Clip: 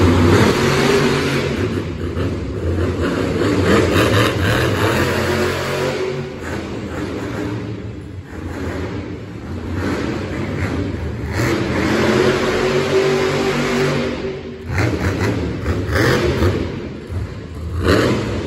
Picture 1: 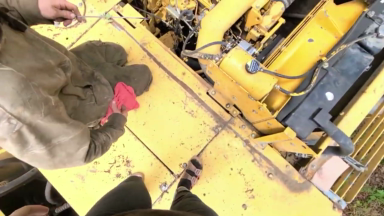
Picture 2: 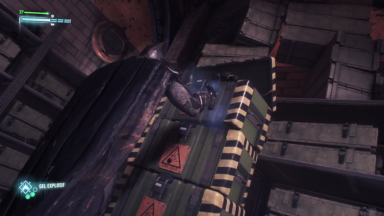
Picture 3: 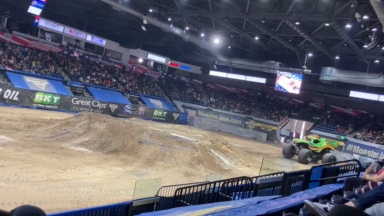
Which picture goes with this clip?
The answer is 3